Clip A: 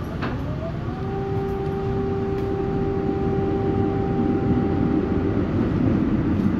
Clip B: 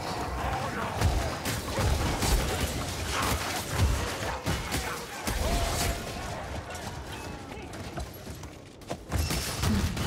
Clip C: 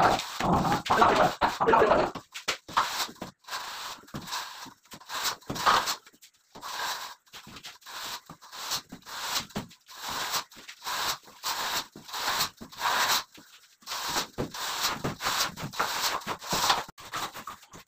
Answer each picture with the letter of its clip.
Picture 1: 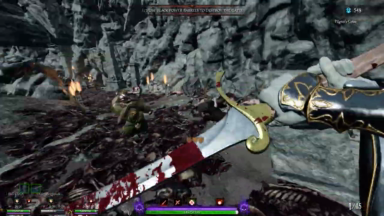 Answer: B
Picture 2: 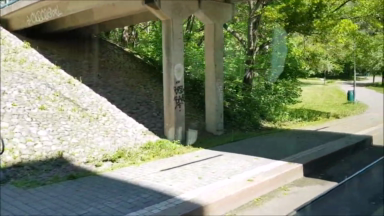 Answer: A